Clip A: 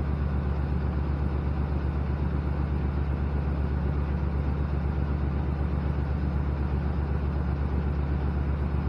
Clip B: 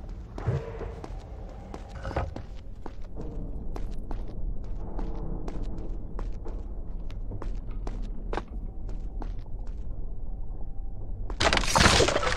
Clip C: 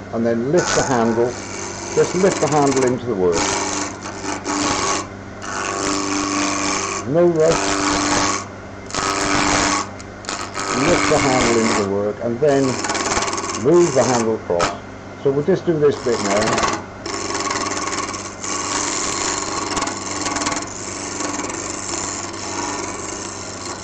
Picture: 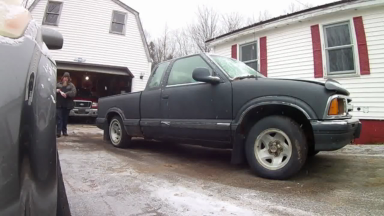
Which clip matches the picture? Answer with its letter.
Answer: A